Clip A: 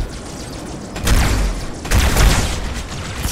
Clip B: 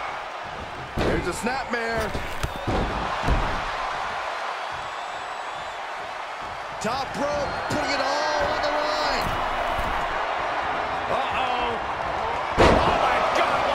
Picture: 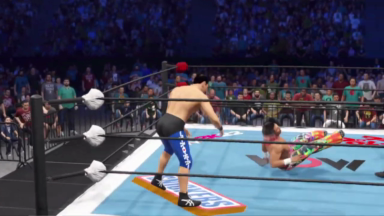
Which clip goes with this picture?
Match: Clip B